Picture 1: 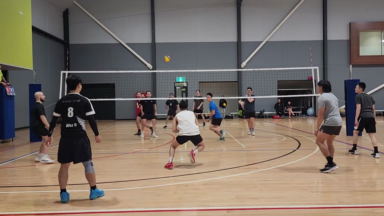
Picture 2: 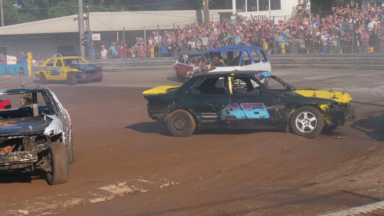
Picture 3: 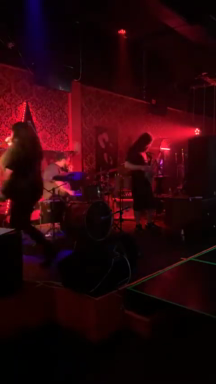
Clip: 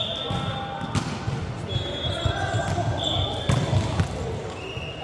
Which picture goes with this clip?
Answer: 1